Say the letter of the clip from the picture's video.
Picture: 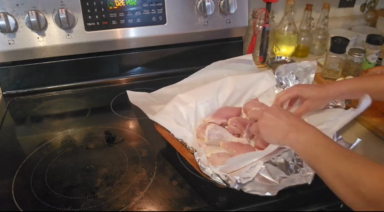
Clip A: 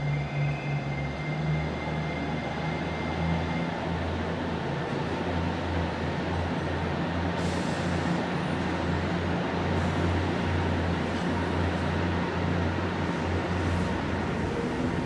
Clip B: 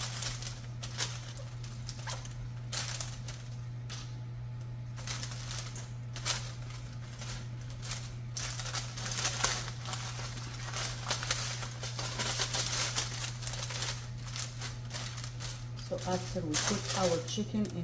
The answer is B